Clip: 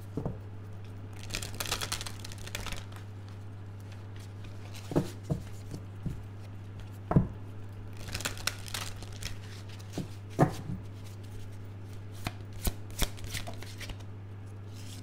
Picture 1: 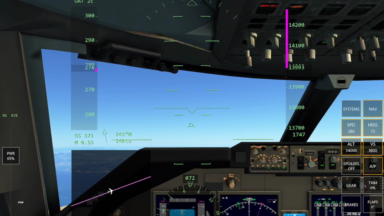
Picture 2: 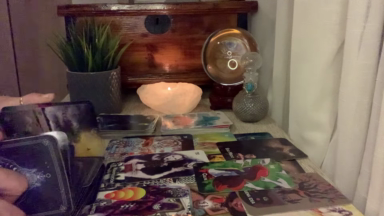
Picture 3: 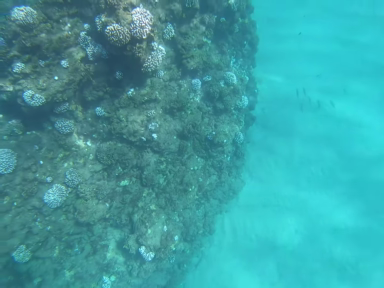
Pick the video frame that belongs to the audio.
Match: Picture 2